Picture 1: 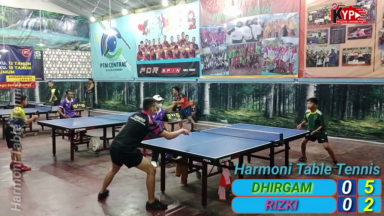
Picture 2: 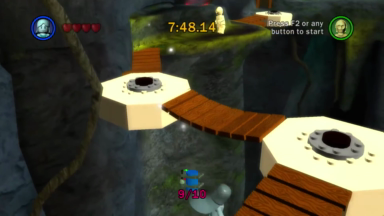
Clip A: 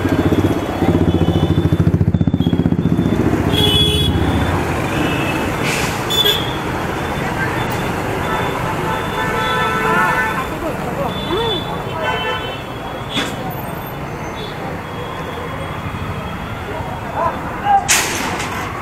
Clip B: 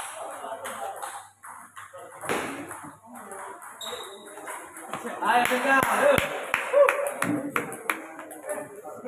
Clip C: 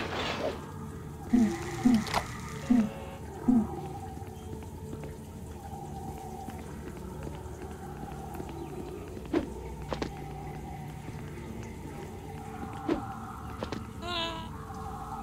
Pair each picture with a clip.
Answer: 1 B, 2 C